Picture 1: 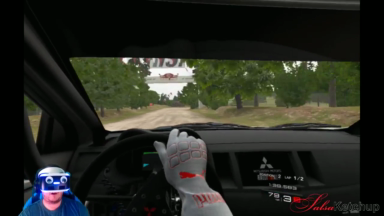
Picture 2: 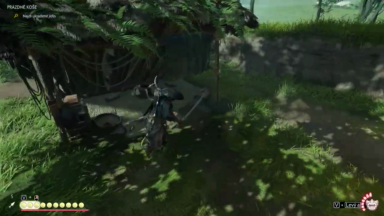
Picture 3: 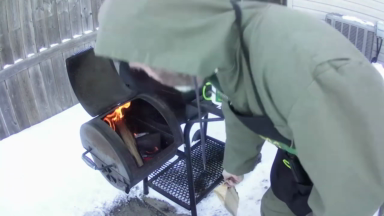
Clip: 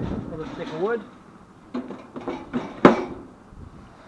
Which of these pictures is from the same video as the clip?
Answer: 3